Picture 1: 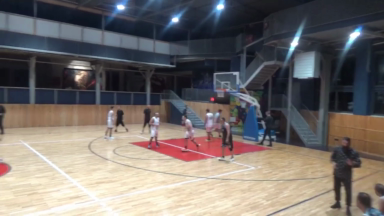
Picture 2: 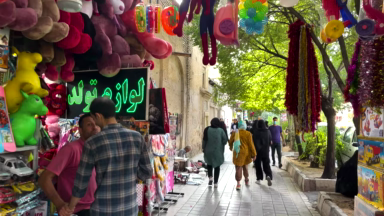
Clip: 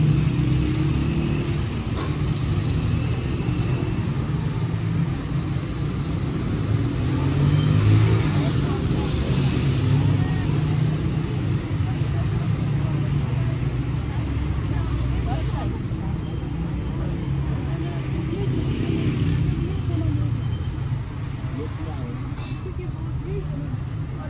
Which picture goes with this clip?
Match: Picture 2